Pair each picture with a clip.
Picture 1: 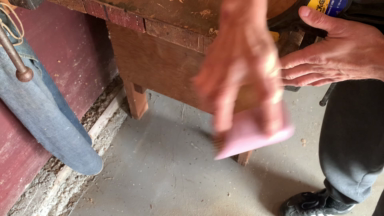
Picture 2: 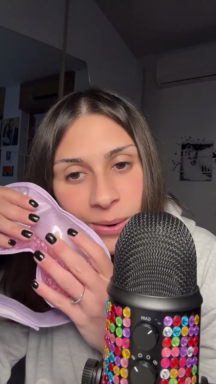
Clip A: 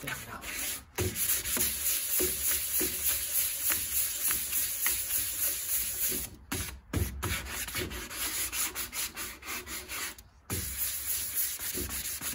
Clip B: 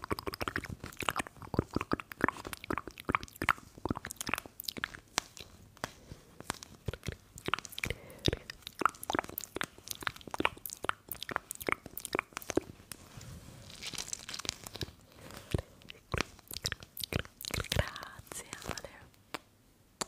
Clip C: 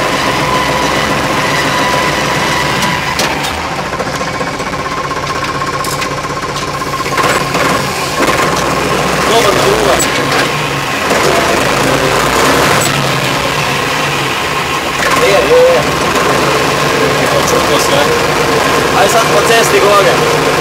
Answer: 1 A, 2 B